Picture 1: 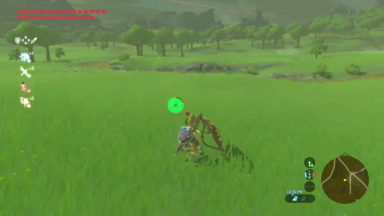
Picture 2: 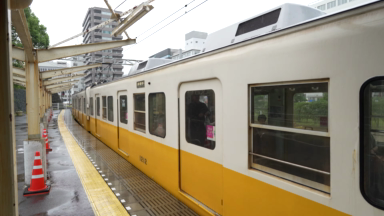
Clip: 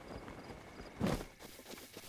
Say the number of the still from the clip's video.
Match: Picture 1